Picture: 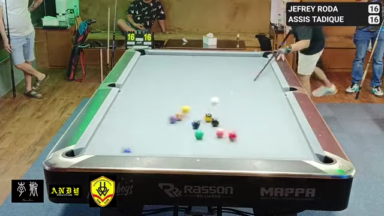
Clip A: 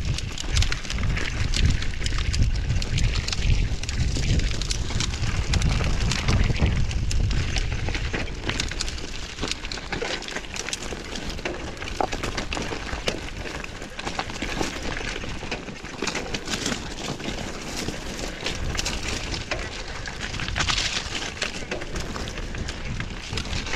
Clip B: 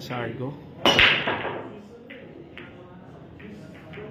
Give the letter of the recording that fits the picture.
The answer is B